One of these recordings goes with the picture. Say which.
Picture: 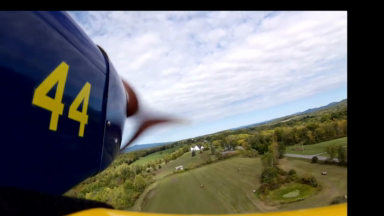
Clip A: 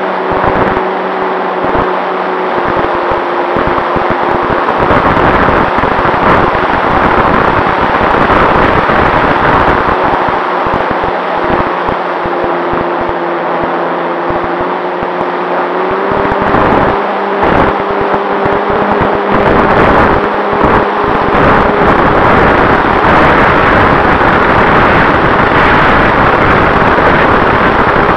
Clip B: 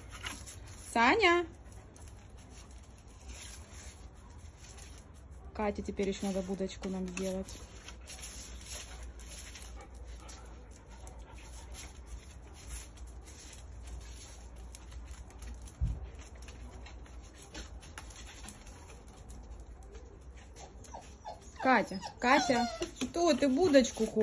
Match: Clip A